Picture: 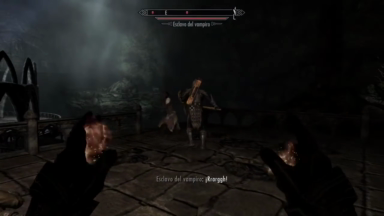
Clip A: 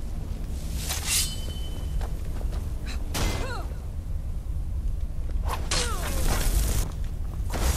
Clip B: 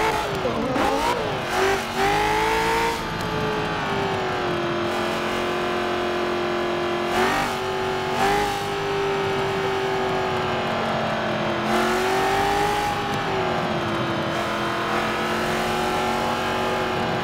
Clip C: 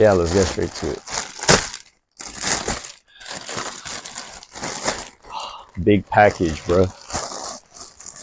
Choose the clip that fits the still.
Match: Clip A